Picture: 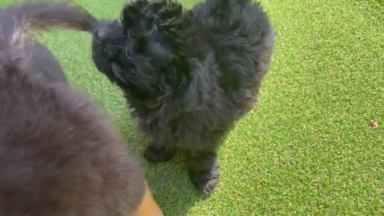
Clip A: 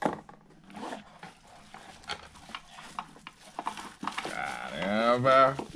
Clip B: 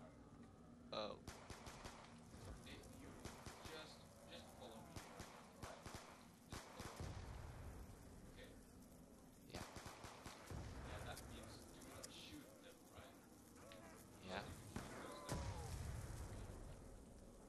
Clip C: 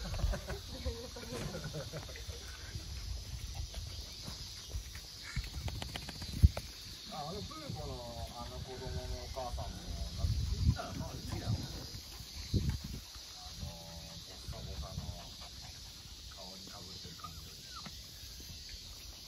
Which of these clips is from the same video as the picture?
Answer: C